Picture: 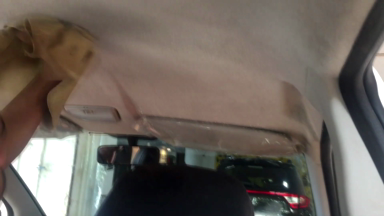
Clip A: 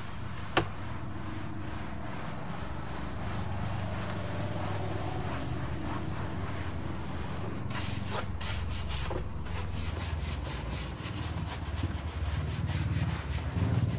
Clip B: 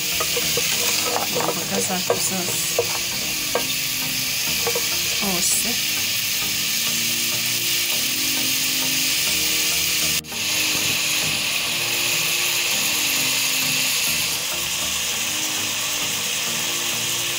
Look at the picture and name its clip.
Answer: A